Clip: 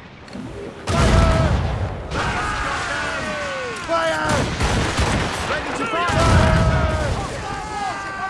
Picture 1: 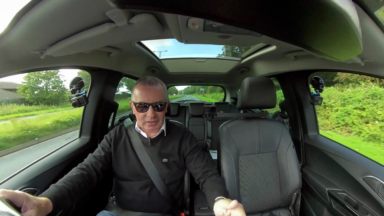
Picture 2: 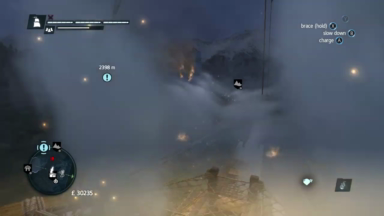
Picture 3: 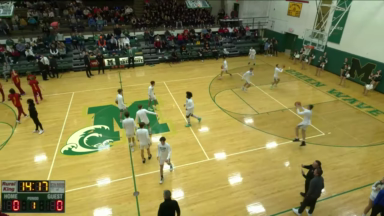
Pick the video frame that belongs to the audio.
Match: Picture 2